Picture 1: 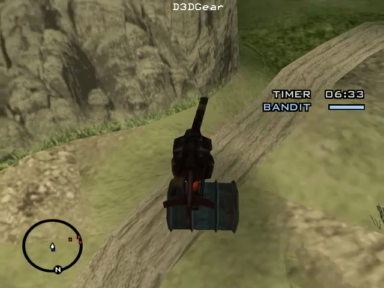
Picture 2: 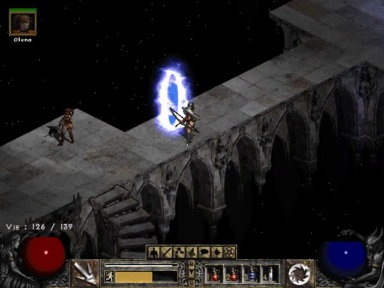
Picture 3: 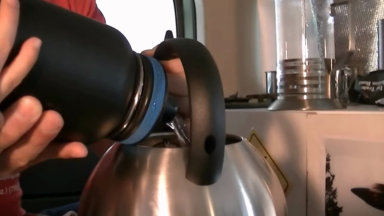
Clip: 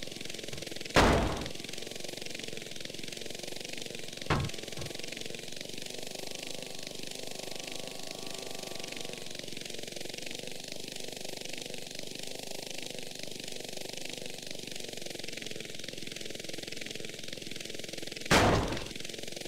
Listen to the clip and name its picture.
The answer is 1